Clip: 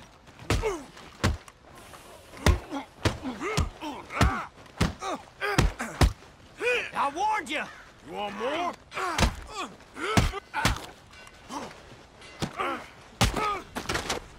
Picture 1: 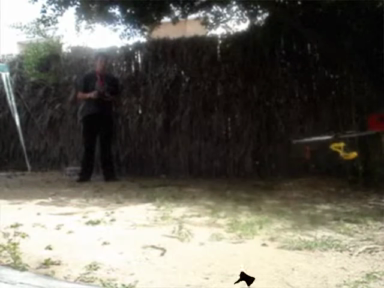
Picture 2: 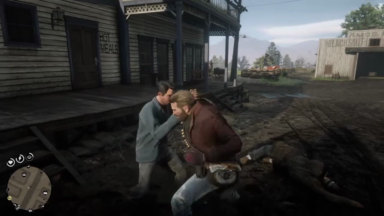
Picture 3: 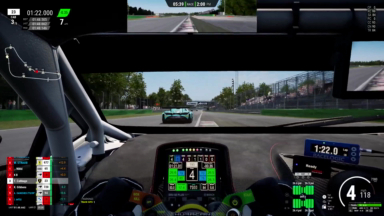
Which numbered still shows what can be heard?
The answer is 2